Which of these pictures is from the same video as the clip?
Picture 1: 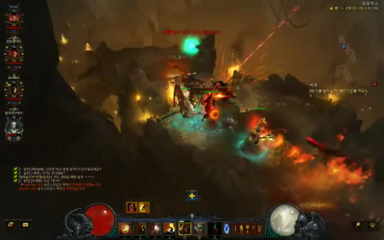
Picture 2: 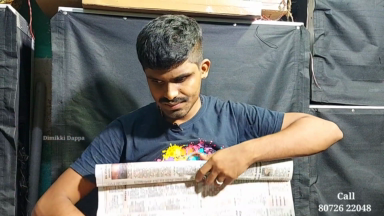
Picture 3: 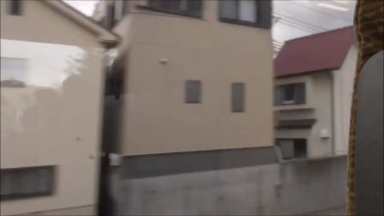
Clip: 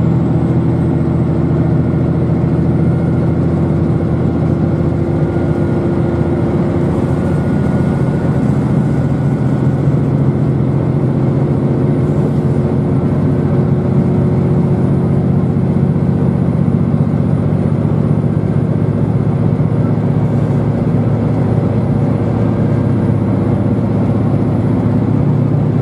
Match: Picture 3